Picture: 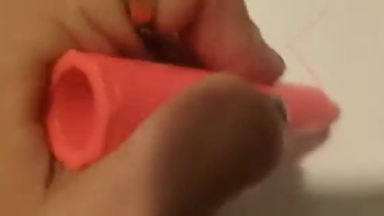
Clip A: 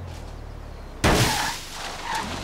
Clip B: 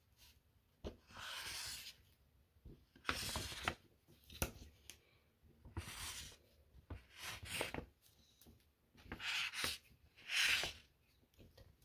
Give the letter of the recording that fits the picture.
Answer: B